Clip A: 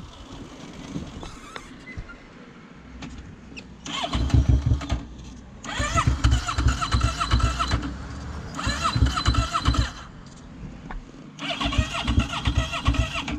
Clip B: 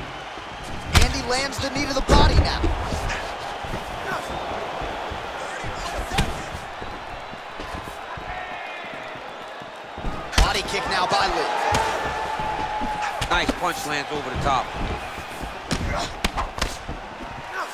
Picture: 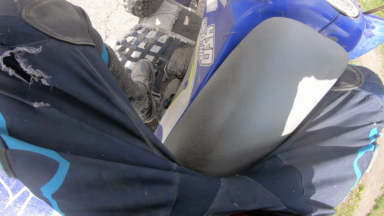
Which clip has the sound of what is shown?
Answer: A